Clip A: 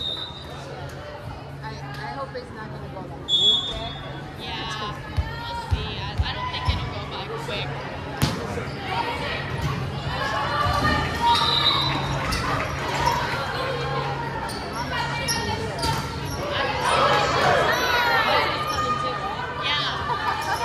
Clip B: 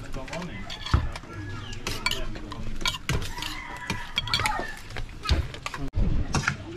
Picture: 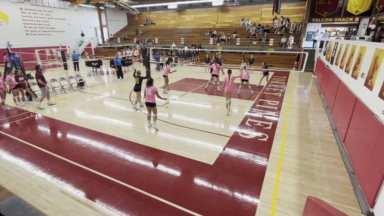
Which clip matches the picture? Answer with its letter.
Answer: A